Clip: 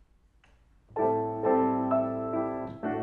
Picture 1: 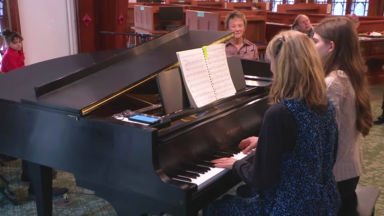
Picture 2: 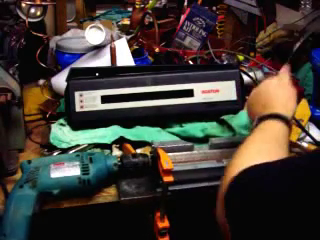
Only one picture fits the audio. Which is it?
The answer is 1